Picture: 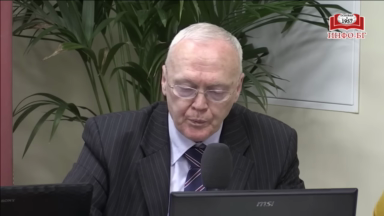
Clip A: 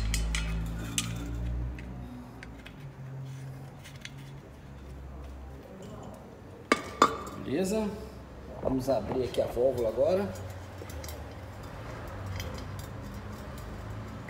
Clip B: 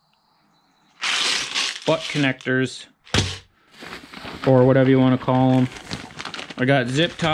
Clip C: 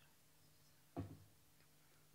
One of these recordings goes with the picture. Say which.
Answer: C